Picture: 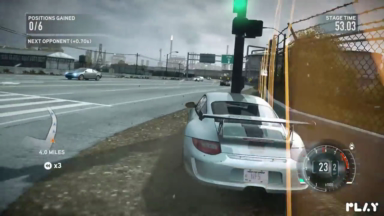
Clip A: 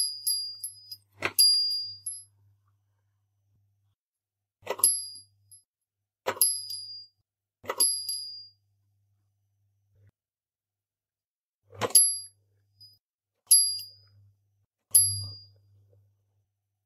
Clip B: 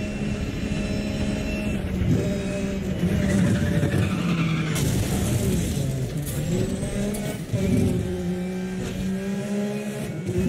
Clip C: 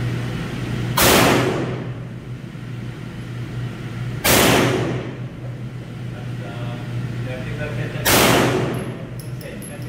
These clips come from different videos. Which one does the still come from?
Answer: B